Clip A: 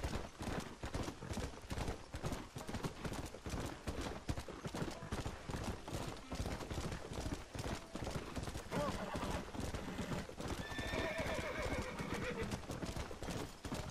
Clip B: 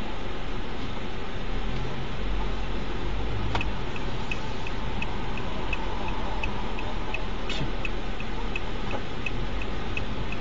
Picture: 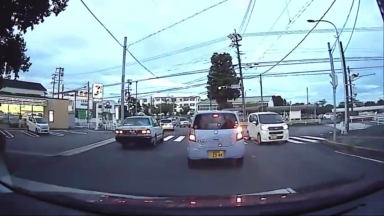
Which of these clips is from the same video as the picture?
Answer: B